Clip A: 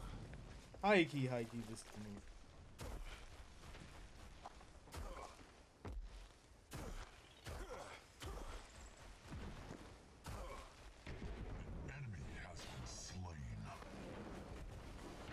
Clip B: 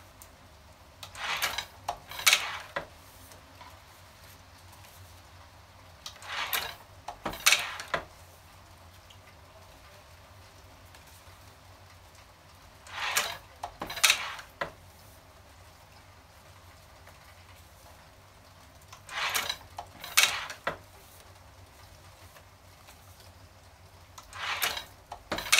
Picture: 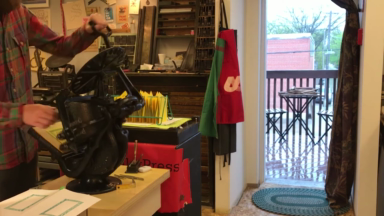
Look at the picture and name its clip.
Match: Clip B